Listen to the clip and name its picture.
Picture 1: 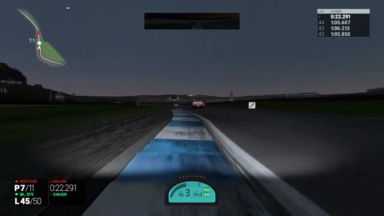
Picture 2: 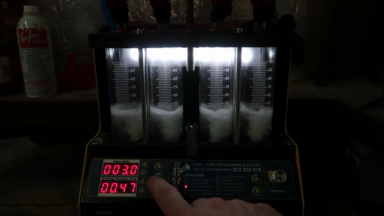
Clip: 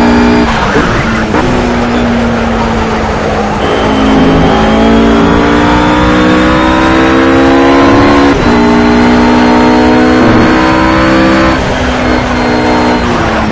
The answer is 1